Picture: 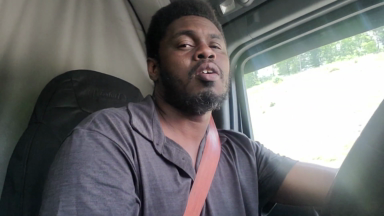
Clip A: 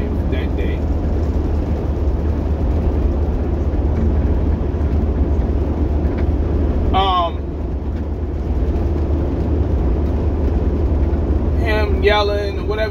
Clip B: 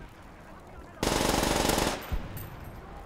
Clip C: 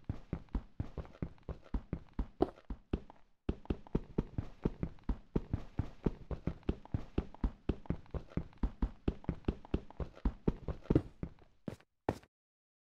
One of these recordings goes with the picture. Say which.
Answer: A